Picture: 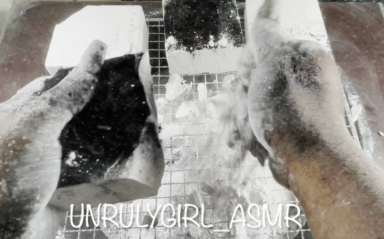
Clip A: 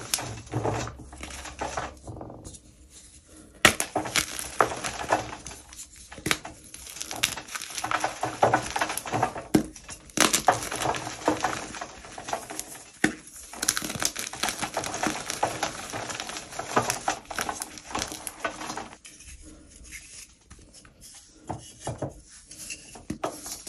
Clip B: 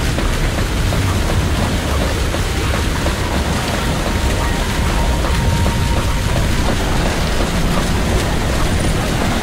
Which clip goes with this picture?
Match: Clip A